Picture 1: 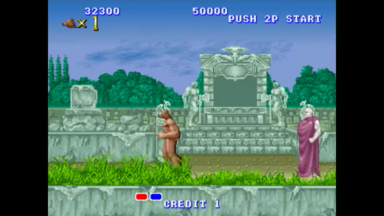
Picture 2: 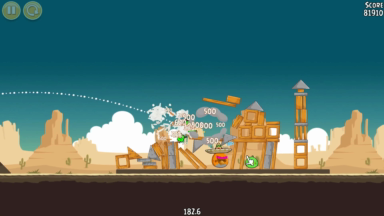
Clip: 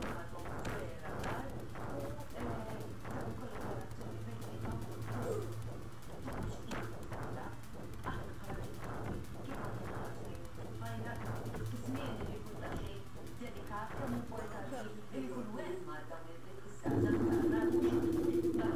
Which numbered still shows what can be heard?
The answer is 1